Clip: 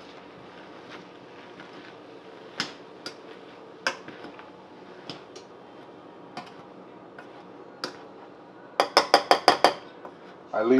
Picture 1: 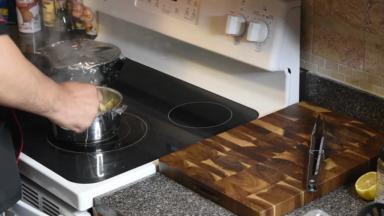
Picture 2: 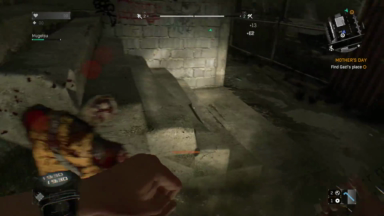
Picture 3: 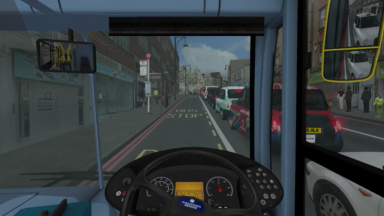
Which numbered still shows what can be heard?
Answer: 1